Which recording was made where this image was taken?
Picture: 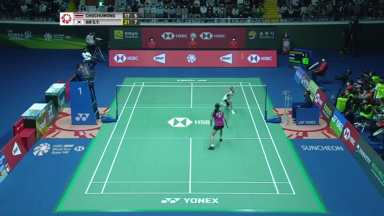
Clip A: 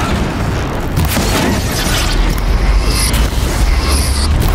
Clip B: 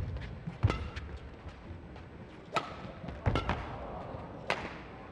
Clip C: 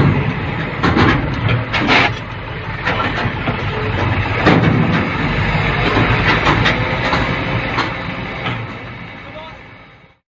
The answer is B